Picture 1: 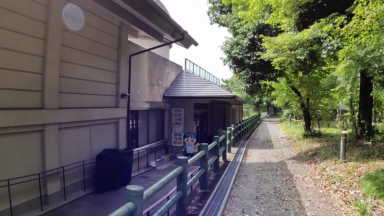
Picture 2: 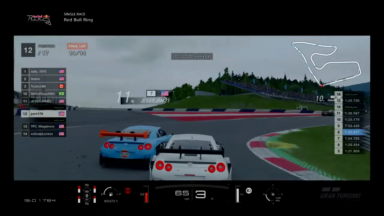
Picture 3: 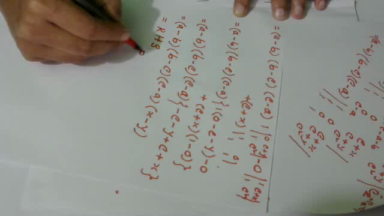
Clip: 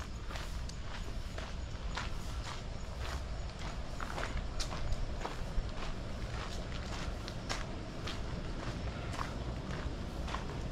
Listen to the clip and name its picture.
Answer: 1